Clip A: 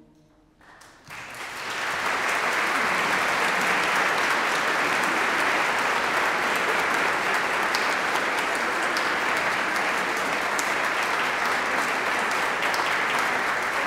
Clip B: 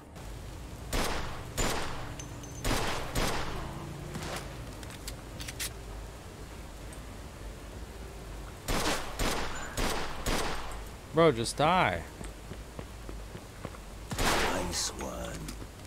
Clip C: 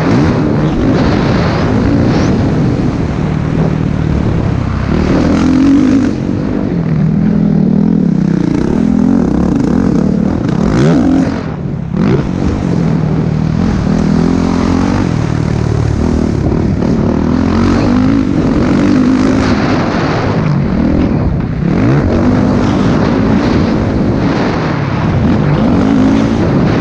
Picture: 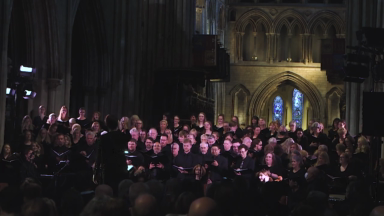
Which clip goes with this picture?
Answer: A